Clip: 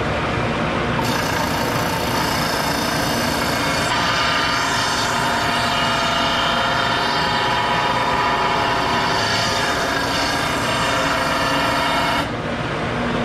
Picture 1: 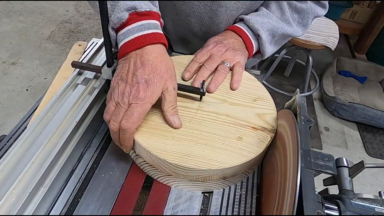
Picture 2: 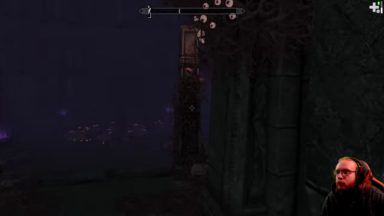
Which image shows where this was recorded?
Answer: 1